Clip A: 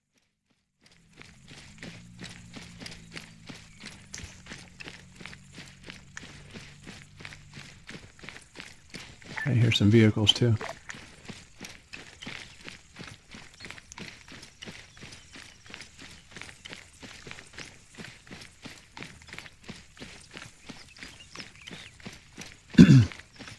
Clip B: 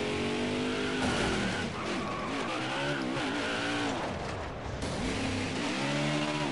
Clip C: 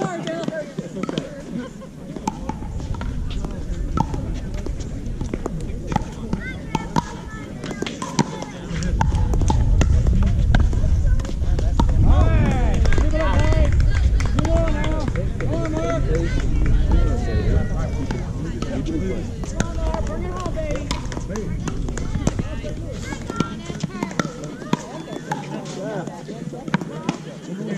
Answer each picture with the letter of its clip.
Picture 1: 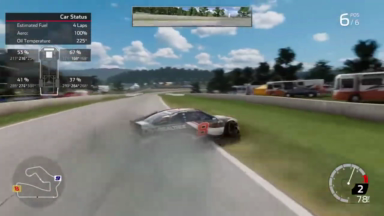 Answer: B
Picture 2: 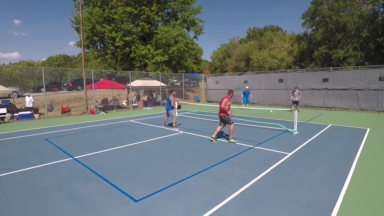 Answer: C